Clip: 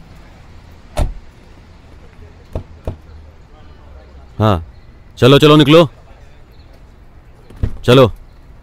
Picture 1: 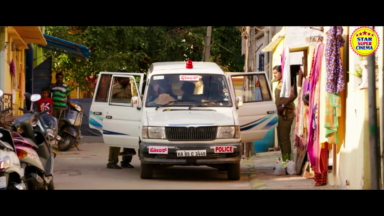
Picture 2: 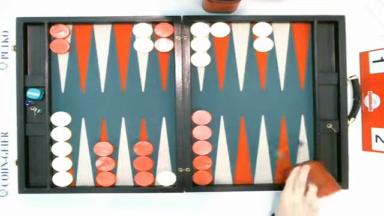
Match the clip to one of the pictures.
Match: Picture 1